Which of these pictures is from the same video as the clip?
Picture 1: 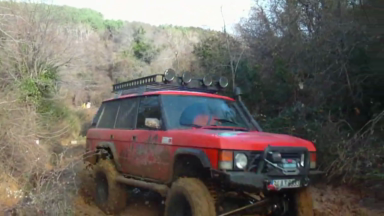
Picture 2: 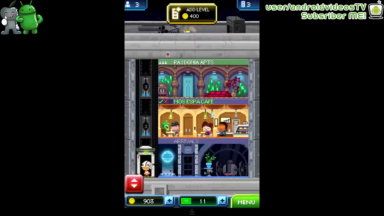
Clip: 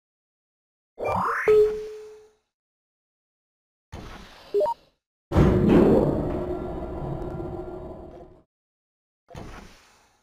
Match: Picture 2